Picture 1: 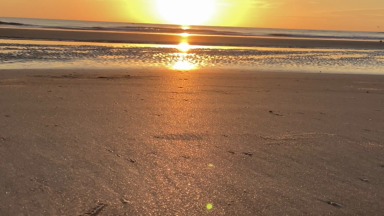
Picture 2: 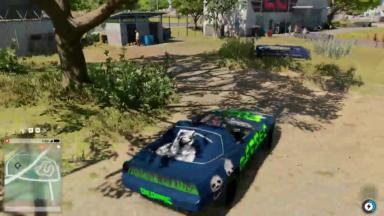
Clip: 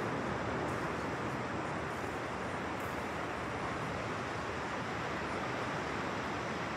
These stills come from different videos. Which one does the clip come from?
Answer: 1